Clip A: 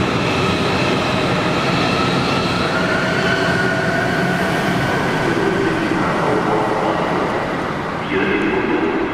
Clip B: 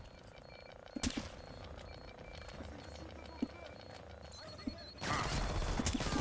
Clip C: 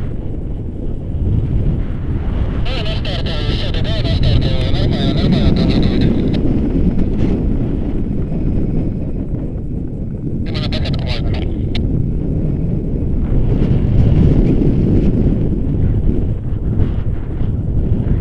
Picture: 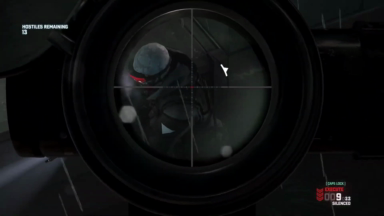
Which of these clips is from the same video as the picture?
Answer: B